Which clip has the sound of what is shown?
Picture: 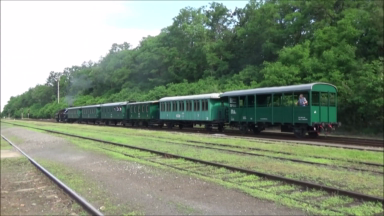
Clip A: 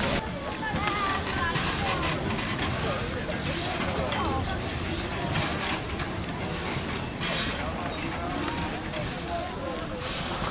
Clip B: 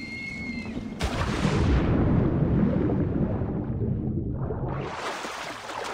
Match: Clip A